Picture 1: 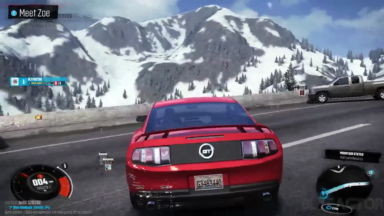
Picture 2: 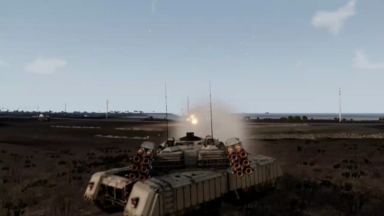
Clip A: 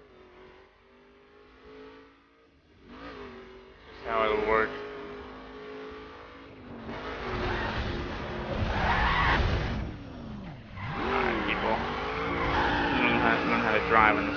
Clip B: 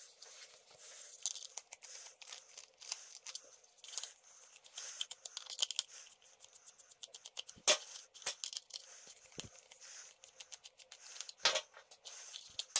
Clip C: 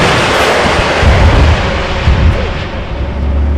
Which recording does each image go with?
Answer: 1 A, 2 C